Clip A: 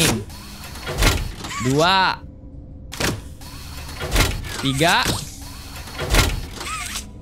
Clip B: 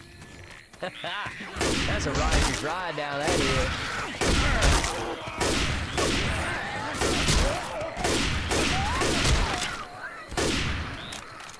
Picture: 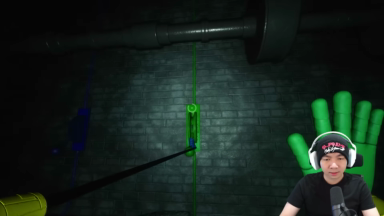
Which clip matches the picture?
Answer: A